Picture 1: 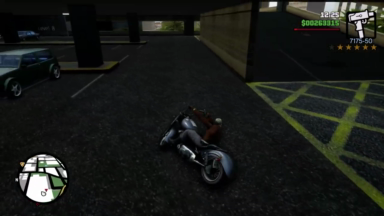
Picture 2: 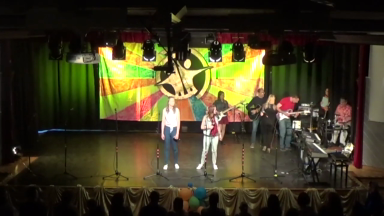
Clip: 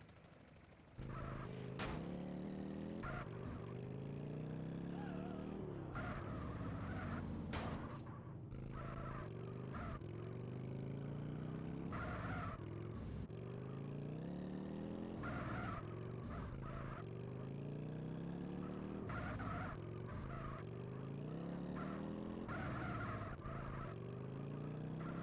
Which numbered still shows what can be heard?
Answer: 1